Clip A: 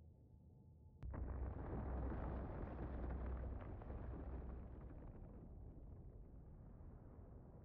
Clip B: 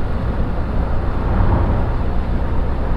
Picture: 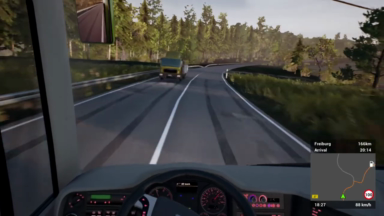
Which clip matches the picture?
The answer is B